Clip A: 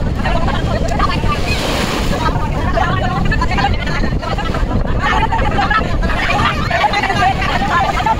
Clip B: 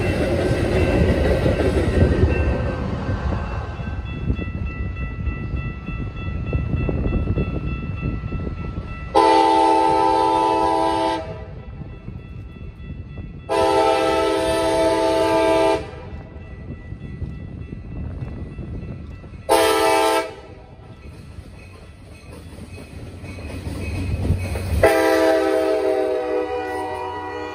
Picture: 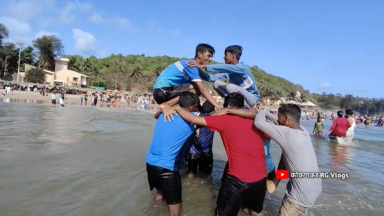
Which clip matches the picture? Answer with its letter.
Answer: A